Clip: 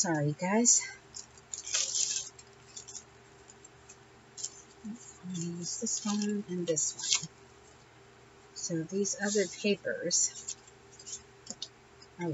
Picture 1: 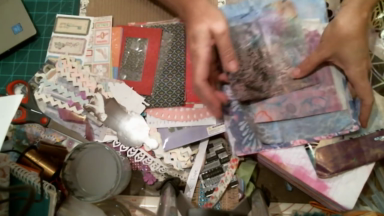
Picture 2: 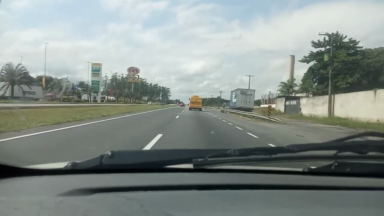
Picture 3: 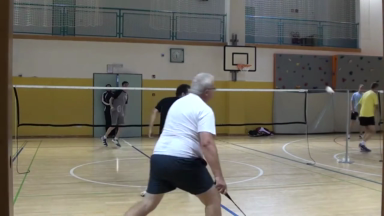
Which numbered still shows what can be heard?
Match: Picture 1